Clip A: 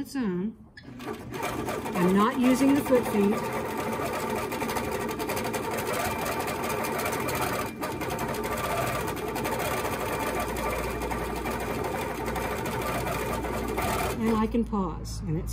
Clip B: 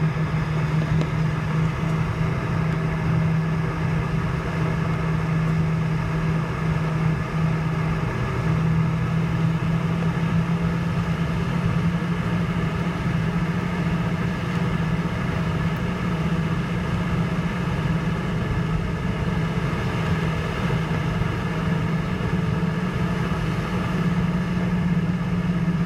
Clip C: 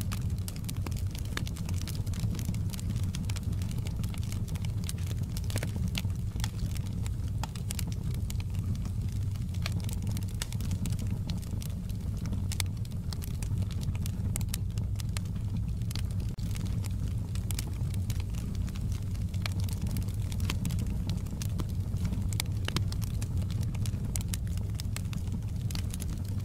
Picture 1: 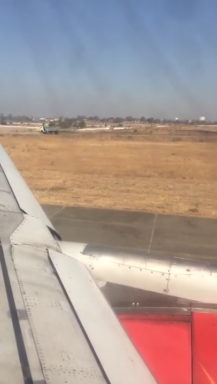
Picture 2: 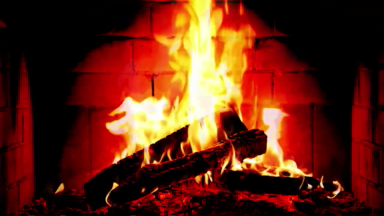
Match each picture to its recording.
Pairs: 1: B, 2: C